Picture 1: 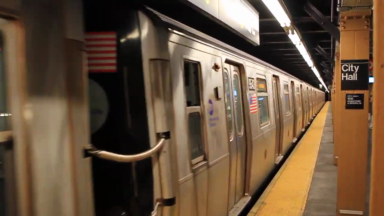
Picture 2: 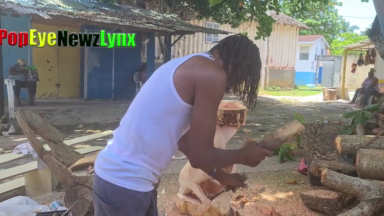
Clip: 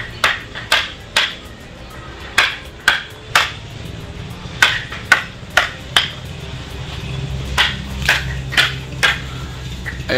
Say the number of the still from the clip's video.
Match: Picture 2